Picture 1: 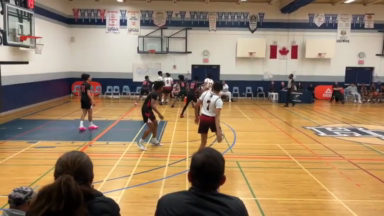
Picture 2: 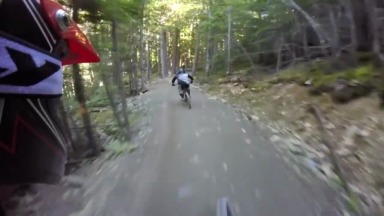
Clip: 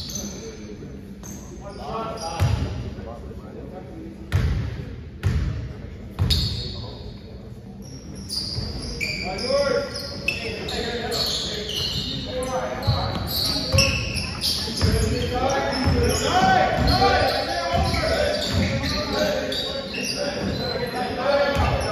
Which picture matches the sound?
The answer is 1